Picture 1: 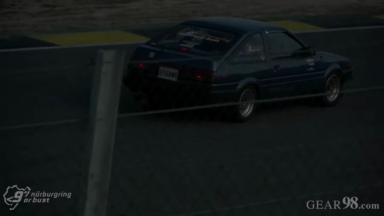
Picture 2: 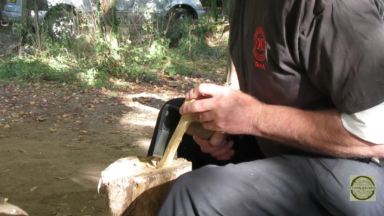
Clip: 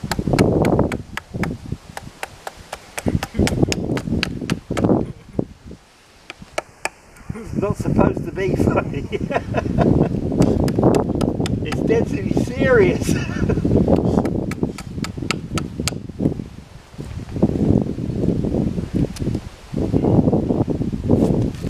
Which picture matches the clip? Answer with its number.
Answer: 2